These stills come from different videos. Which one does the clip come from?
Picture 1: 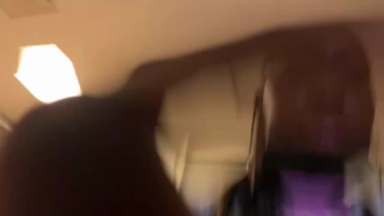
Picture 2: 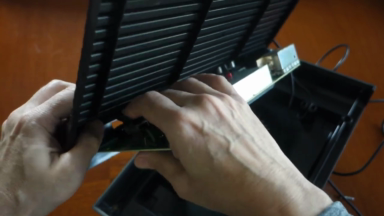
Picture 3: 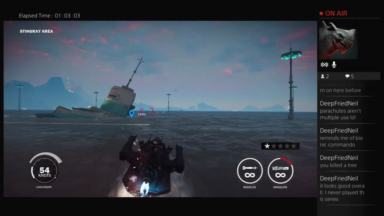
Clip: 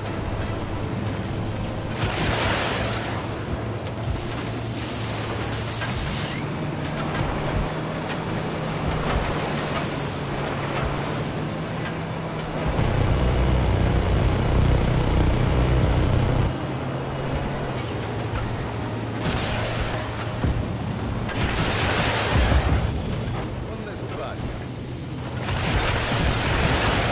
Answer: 3